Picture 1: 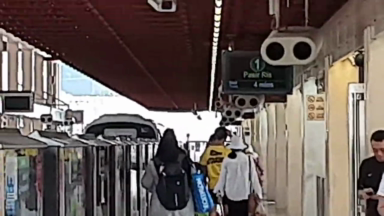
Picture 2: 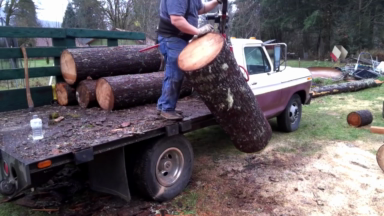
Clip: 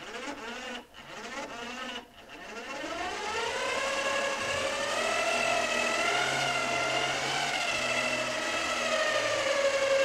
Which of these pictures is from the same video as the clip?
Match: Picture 2